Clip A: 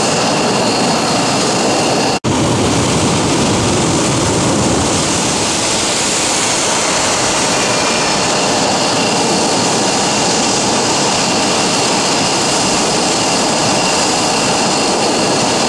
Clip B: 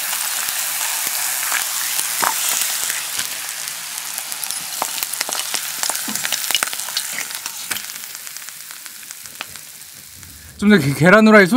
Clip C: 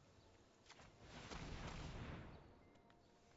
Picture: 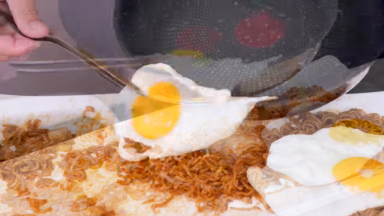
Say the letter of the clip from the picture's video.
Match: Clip B